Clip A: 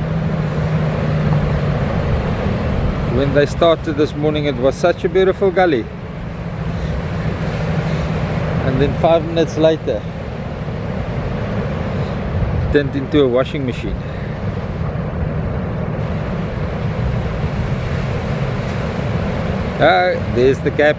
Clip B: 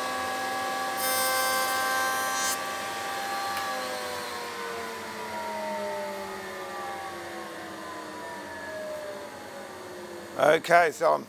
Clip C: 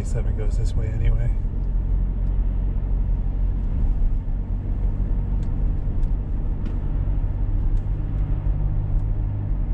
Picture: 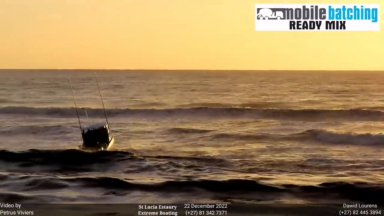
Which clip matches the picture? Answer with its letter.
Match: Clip A